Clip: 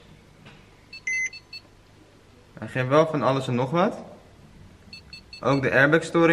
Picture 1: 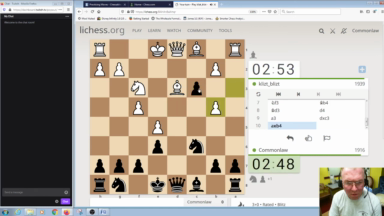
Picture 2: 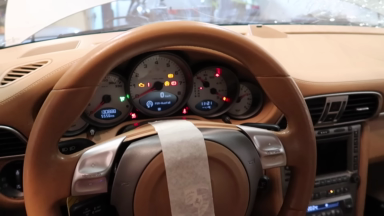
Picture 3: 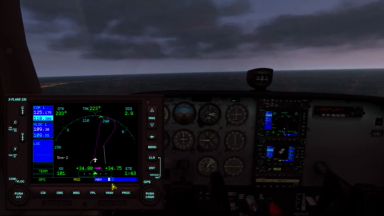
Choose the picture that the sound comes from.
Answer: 2